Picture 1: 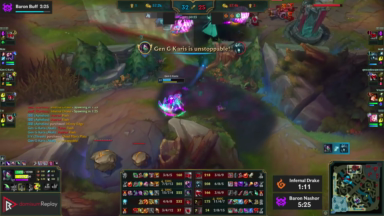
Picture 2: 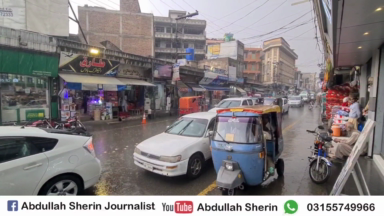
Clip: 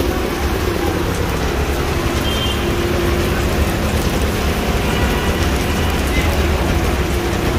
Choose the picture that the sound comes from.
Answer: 2